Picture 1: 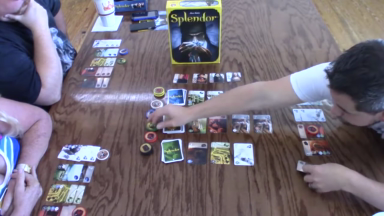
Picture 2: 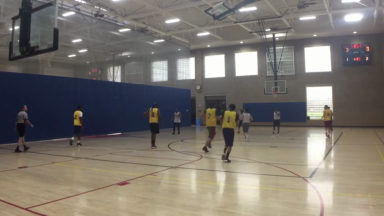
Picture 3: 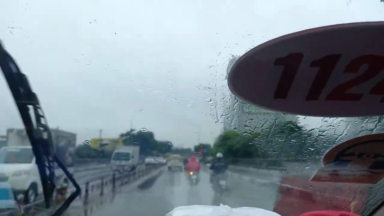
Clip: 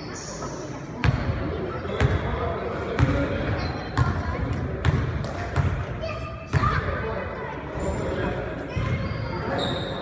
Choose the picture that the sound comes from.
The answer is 2